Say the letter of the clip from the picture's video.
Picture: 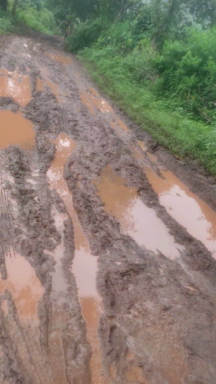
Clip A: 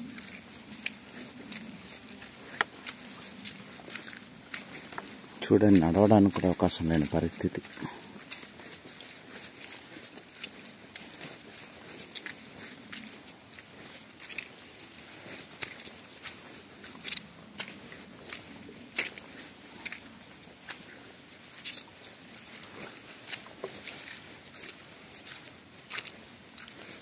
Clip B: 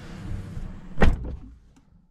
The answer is A